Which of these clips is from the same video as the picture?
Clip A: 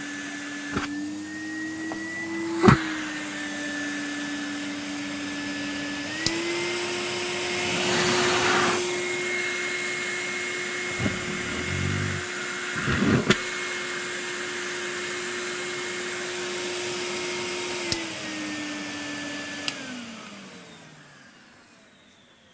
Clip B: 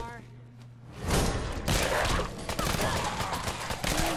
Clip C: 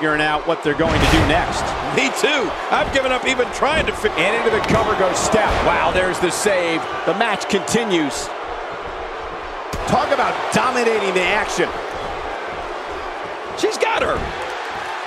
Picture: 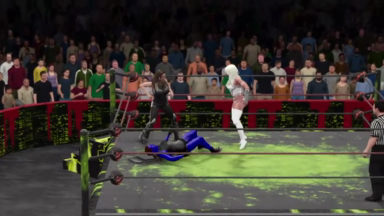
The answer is C